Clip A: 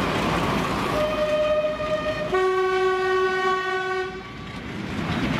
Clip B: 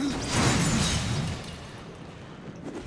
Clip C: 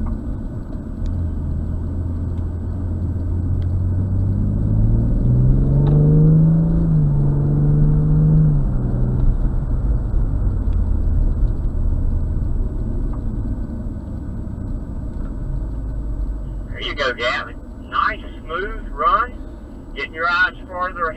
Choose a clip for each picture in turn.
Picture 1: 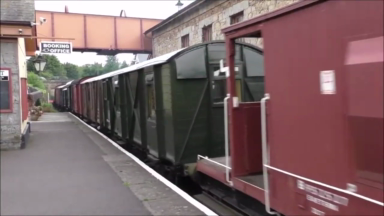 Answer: A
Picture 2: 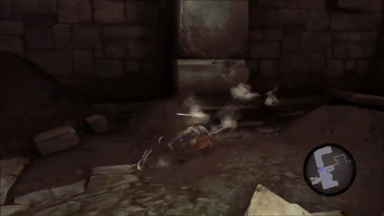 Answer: B